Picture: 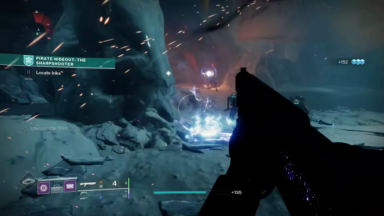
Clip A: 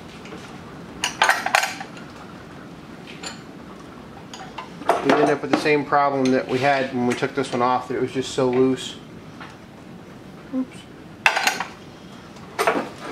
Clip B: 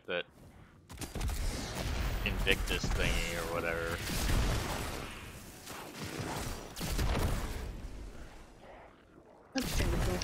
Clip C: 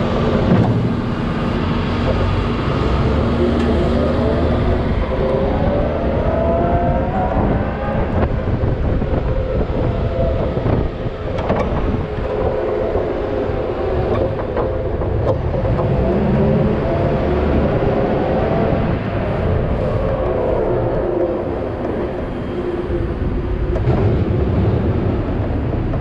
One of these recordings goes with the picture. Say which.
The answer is B